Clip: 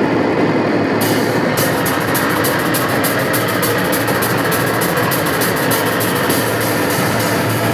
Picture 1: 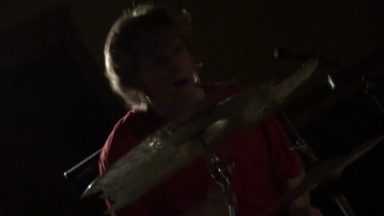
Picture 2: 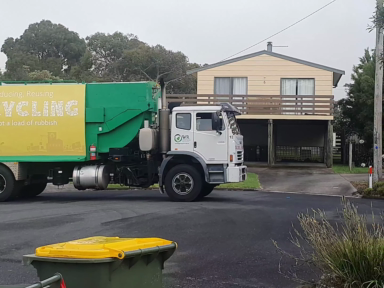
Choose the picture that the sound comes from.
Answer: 1